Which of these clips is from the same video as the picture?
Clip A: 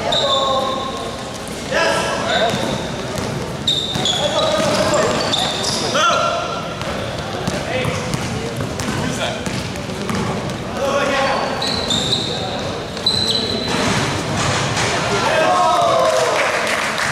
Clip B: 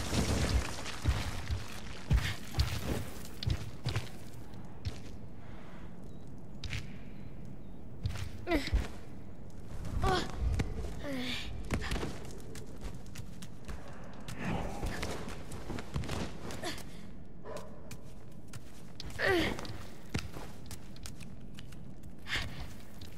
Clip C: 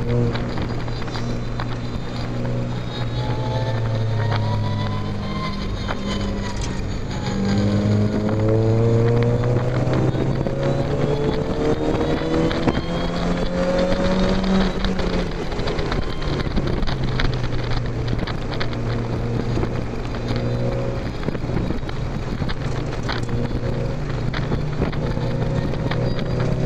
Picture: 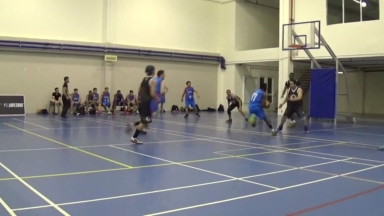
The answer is A